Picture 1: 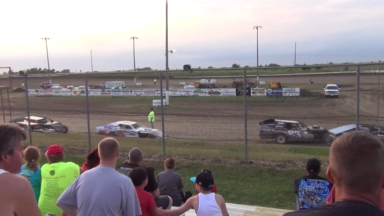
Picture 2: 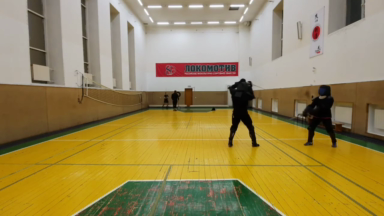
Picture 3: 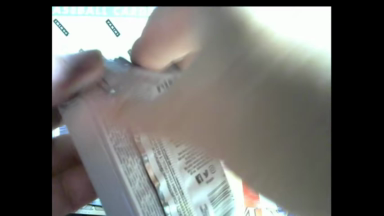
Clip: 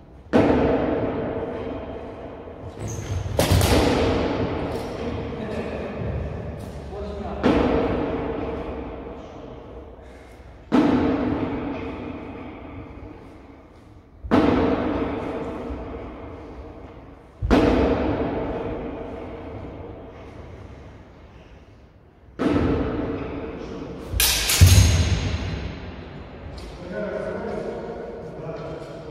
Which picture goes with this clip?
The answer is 2